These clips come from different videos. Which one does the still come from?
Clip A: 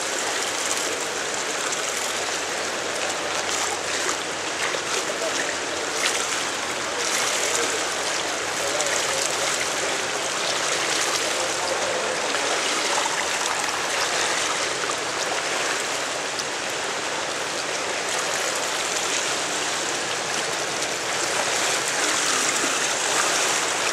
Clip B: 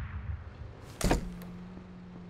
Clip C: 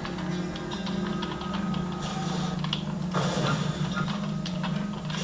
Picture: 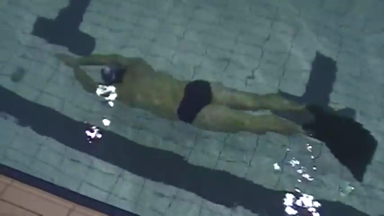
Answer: A